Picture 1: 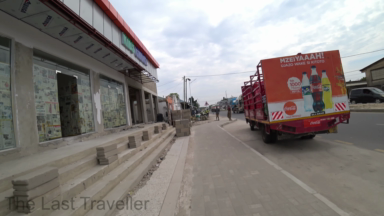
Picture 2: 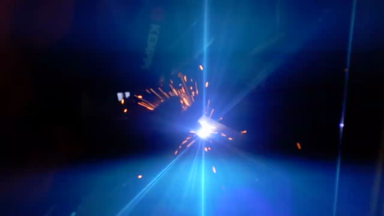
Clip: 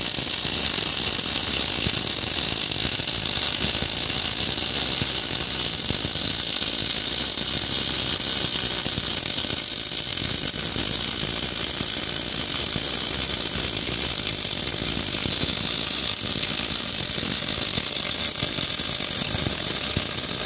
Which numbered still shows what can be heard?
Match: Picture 2